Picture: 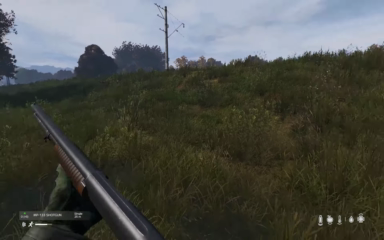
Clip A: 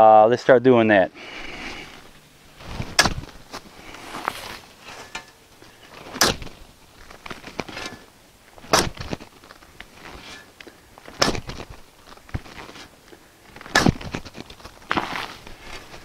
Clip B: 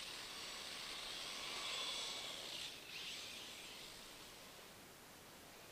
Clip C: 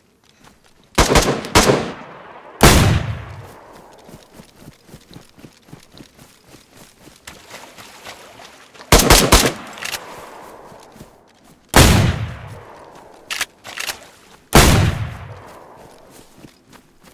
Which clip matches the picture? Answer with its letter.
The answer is C